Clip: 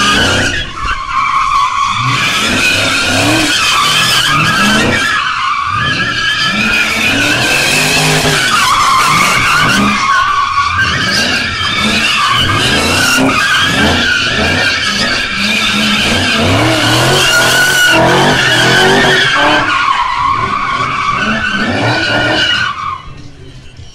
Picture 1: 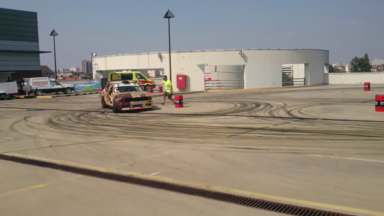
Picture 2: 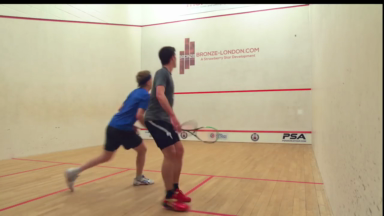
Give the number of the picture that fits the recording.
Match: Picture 1